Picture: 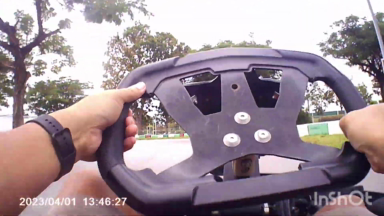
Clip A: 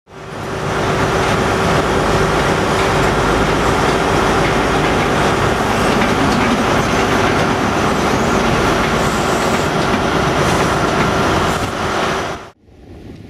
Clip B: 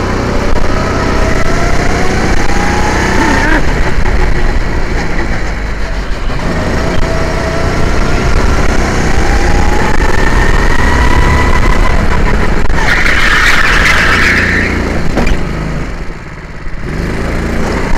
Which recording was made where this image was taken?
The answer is B